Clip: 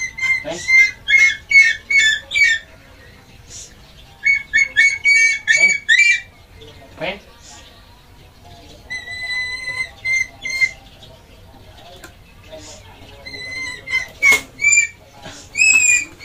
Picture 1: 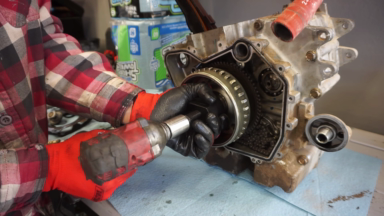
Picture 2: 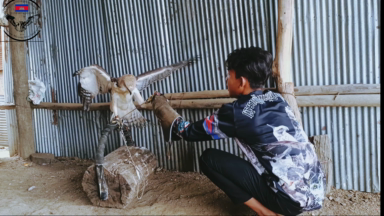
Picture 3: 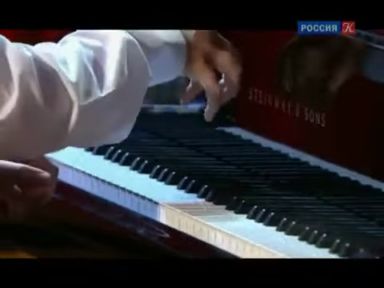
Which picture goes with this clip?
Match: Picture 2